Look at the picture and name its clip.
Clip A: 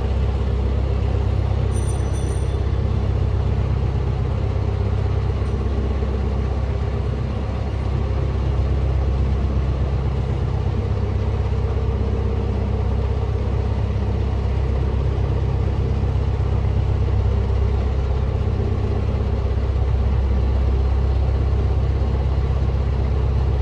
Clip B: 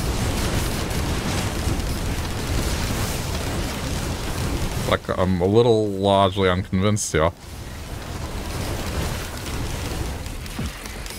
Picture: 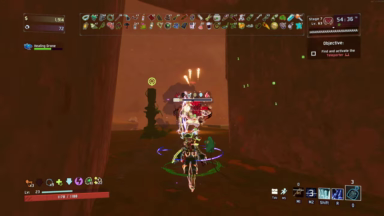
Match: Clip B